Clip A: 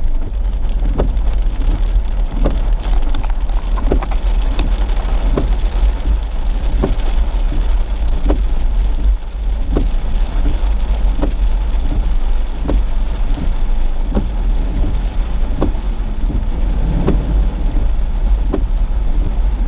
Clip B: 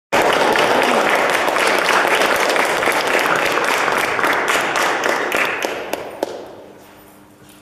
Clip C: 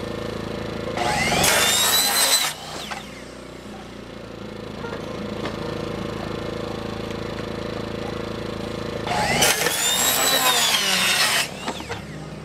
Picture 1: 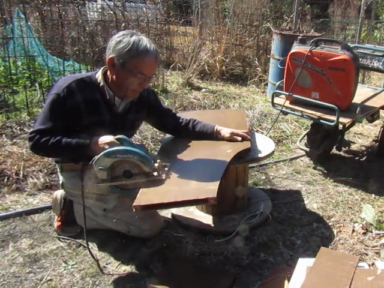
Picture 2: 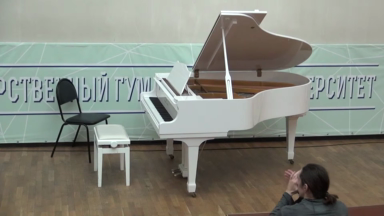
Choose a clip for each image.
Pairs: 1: C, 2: B